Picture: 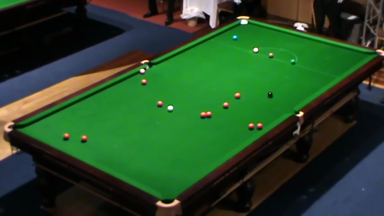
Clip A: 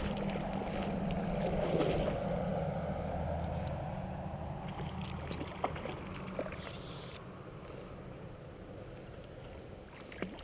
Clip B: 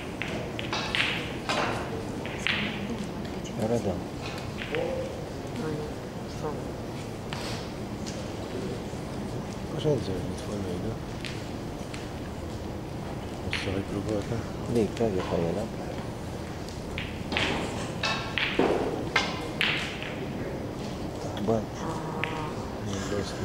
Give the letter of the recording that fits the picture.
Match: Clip B